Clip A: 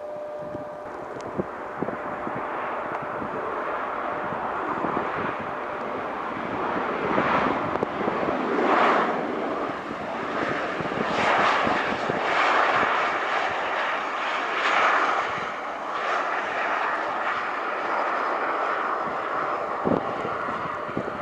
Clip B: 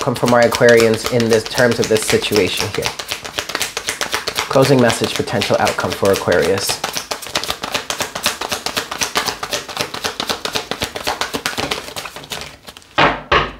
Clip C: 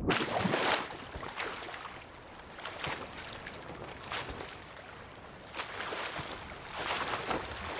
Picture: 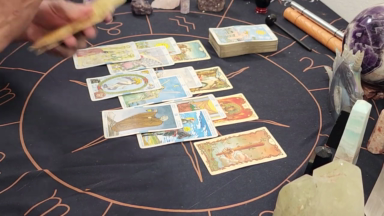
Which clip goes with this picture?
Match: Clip B